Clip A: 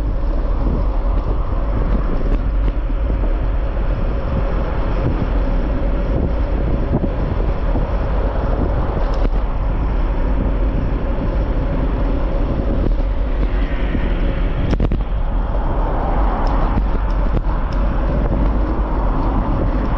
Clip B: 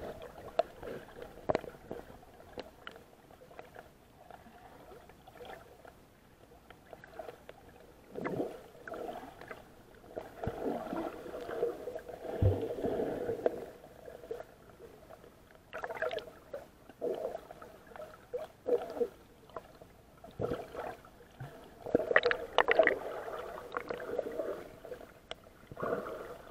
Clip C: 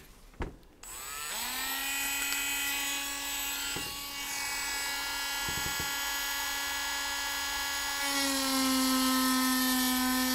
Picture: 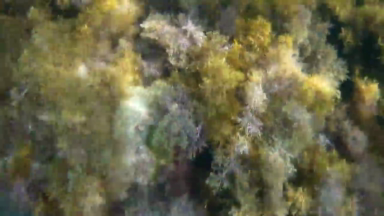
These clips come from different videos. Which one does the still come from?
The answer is B